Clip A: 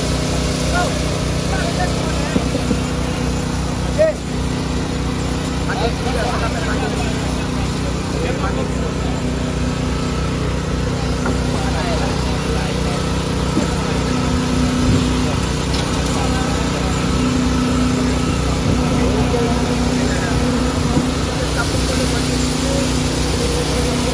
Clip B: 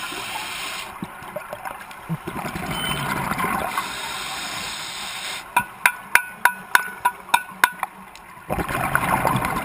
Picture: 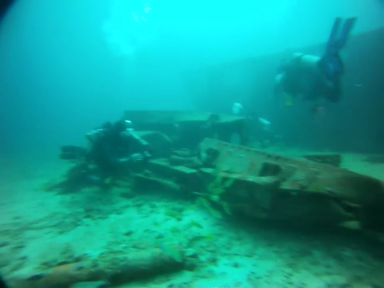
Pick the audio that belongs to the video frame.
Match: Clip B